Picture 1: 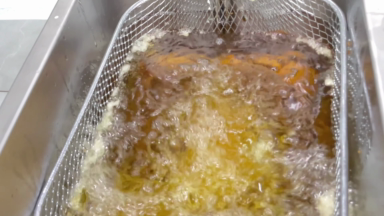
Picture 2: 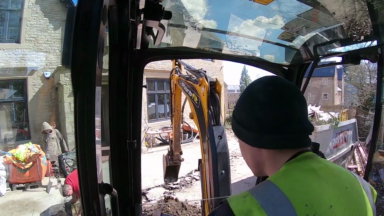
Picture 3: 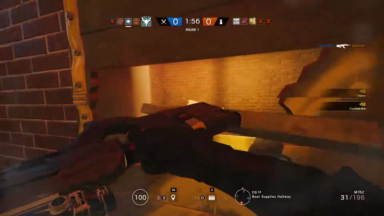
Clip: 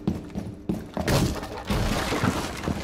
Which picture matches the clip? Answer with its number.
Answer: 3